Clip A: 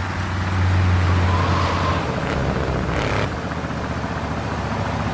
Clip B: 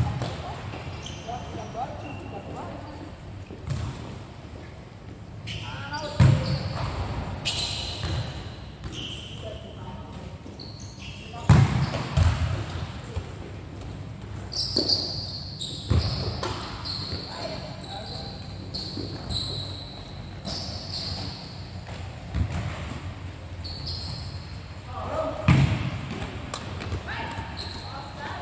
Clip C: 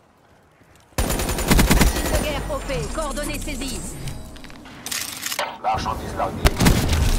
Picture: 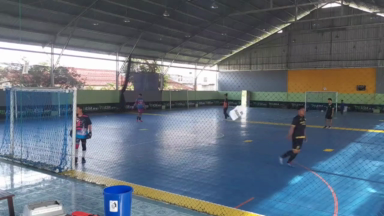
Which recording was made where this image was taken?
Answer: B